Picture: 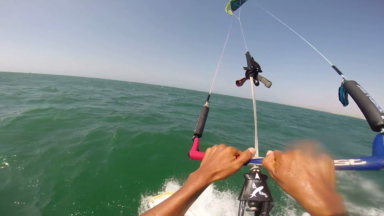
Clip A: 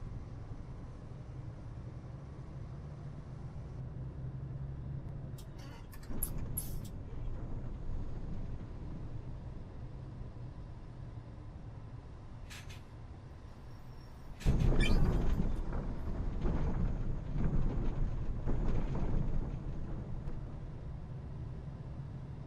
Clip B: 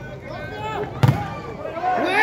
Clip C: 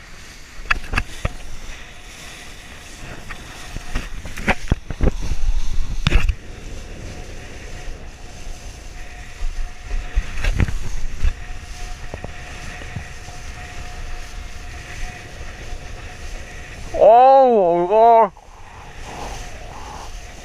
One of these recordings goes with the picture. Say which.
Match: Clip C